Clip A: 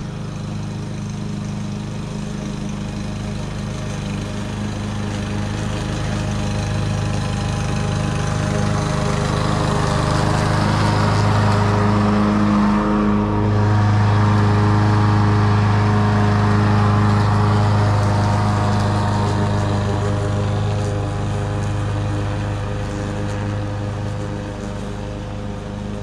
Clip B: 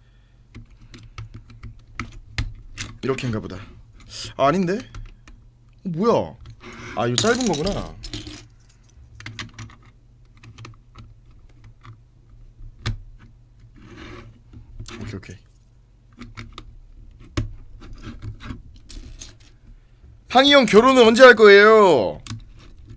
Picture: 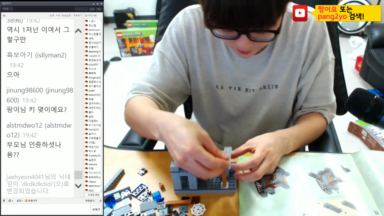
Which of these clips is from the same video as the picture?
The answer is B